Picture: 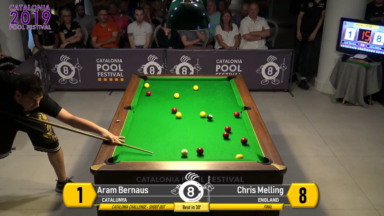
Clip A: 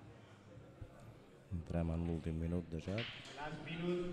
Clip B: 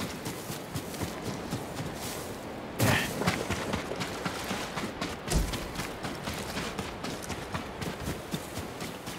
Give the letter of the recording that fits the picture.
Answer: A